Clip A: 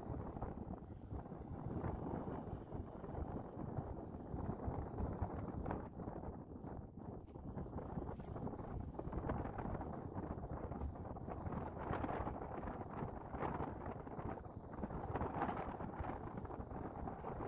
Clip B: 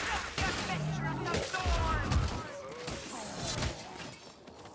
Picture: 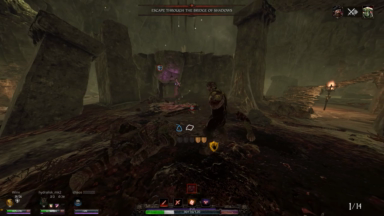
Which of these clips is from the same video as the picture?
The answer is B